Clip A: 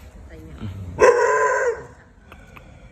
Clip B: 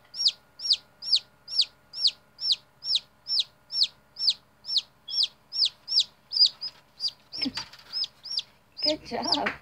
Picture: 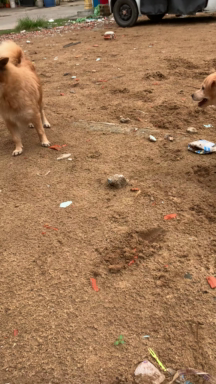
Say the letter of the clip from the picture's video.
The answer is A